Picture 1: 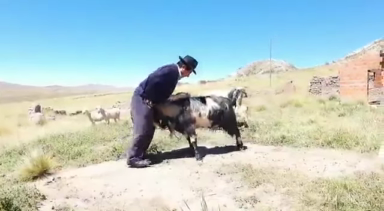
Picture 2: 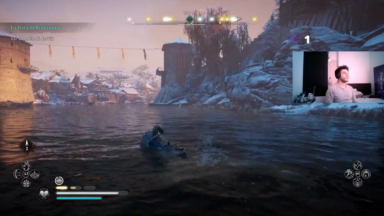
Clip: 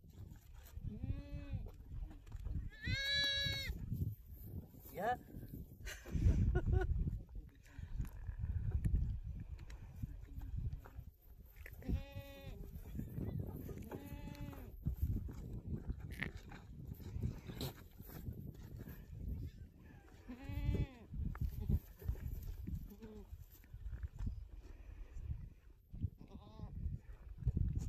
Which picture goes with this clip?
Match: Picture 1